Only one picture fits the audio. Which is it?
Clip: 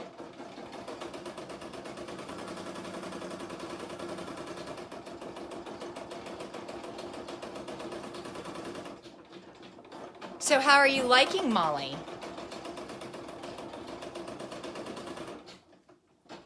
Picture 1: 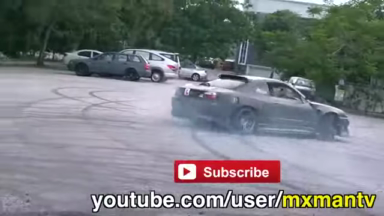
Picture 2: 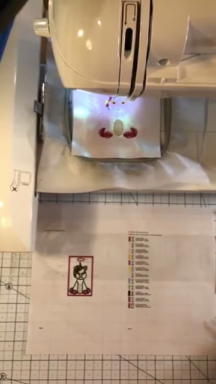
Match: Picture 2